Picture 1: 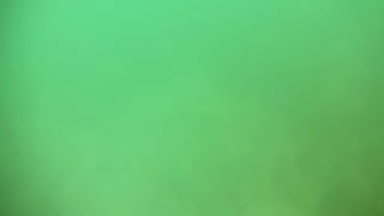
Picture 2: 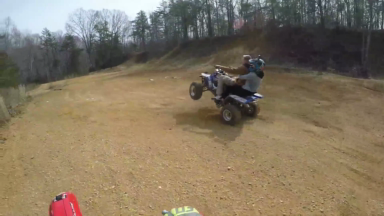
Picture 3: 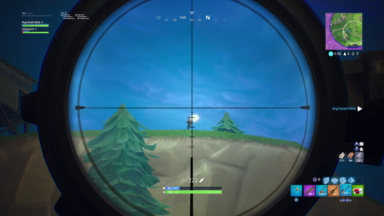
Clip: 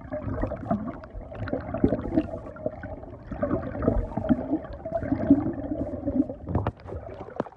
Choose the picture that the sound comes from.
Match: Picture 1